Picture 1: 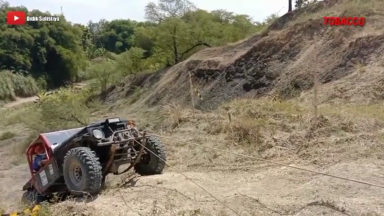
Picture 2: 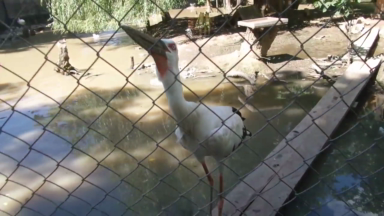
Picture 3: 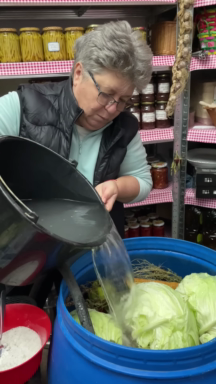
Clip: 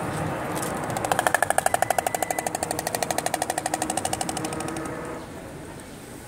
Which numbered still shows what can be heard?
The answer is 2